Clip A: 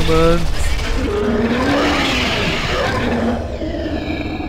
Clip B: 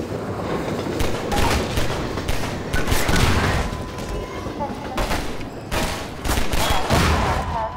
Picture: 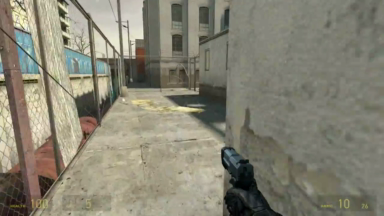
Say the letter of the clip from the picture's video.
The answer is B